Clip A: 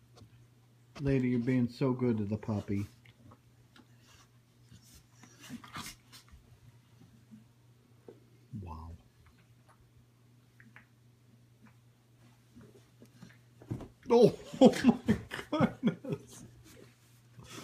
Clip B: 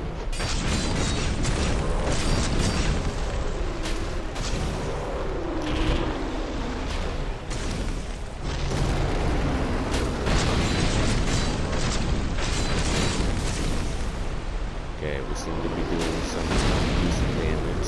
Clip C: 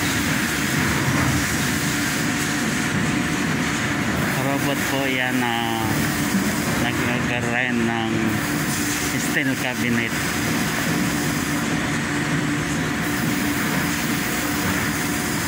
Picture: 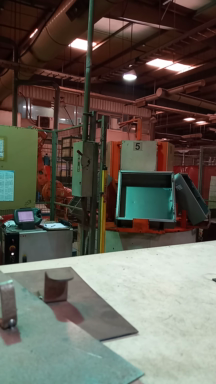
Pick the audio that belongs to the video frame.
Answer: C